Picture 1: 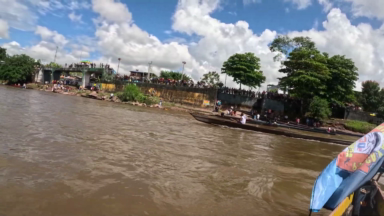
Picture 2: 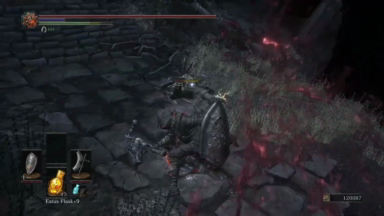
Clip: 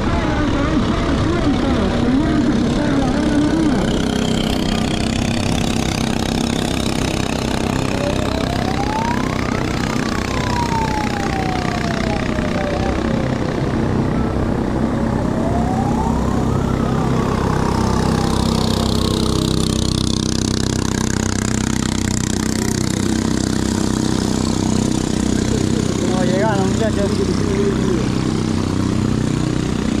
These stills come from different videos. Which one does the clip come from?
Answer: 1